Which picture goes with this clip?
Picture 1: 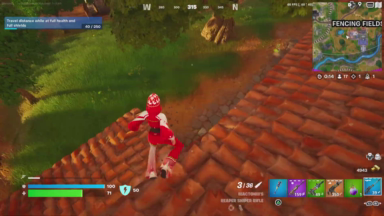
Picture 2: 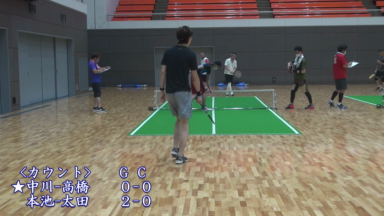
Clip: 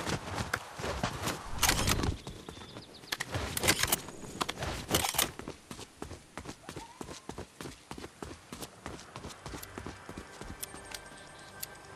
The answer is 1